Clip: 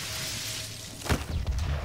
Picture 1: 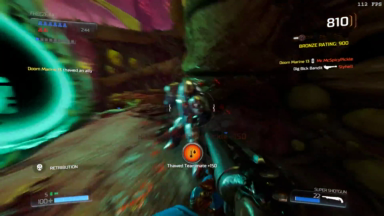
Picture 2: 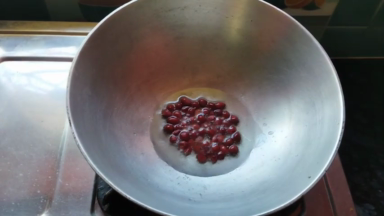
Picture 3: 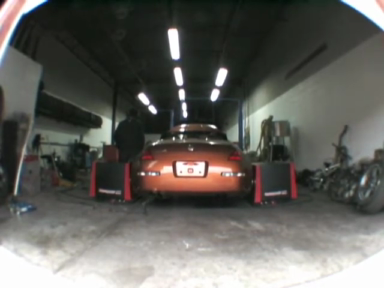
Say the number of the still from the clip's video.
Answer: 1